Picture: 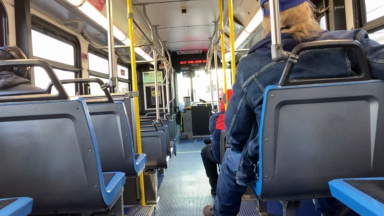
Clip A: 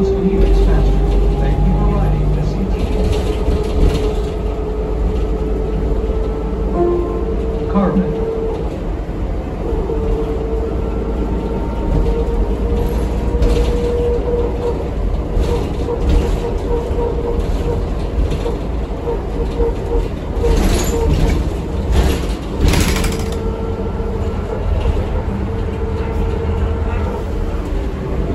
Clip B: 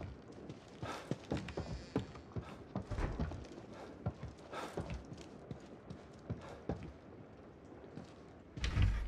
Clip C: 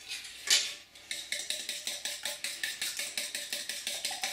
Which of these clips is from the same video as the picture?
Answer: A